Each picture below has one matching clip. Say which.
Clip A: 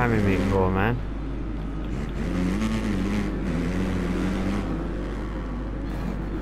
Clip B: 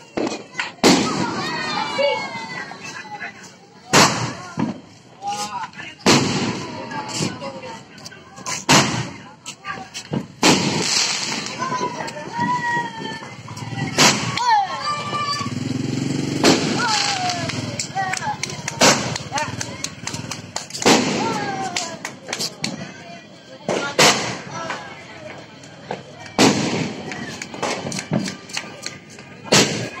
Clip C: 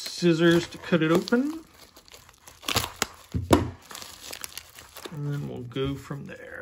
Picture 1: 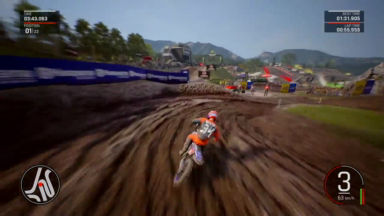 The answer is A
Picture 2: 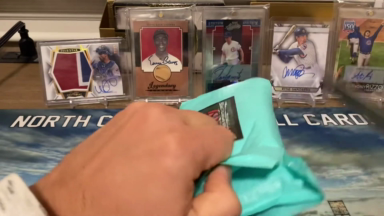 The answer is C